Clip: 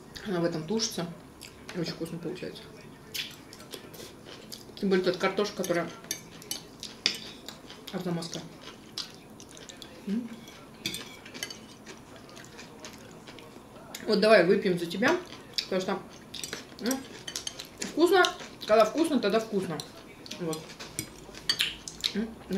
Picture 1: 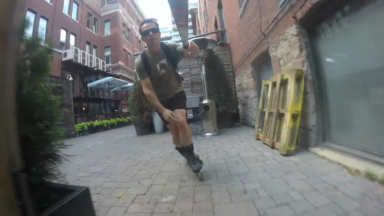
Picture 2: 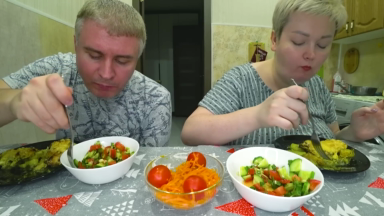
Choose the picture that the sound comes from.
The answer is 2